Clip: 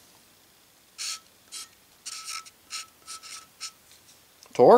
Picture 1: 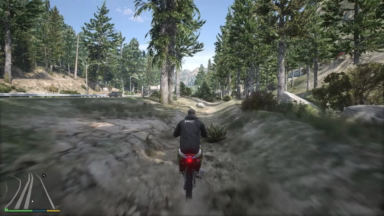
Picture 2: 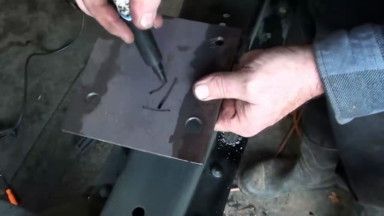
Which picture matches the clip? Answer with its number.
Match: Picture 2